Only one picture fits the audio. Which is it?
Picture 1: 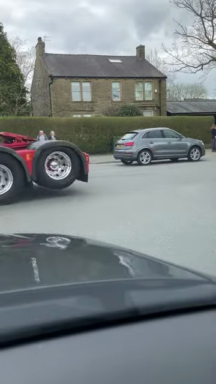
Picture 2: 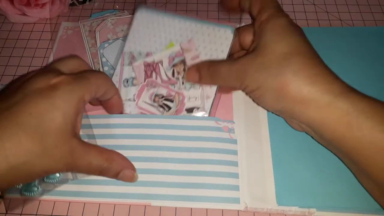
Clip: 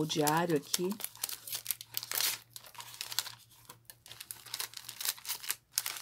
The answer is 2